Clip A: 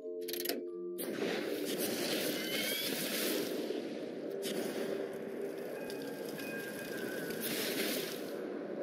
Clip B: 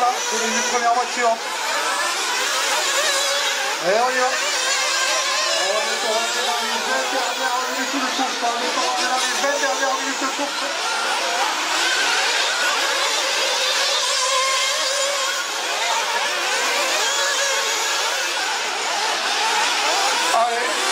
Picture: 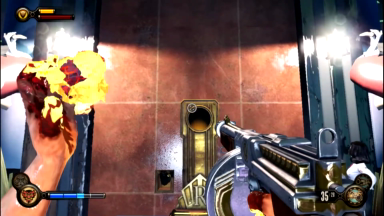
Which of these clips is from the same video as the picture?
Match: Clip A